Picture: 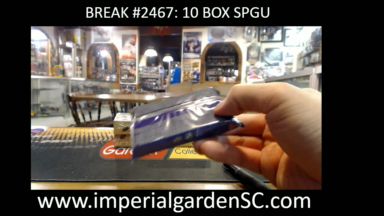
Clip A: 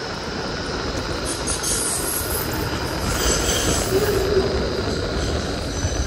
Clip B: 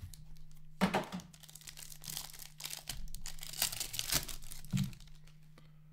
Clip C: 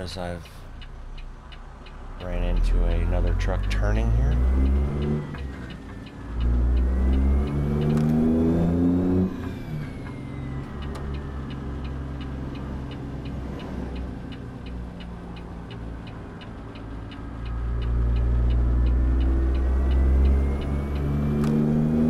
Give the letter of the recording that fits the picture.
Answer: B